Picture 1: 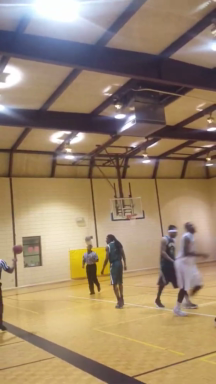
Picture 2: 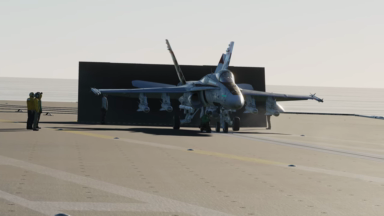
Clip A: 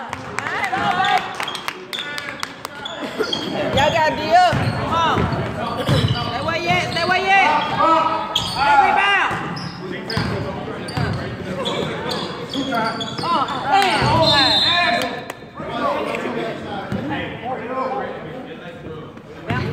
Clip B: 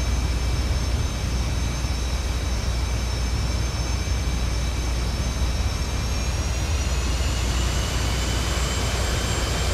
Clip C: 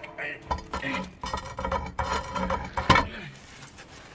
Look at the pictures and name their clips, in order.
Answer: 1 A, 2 B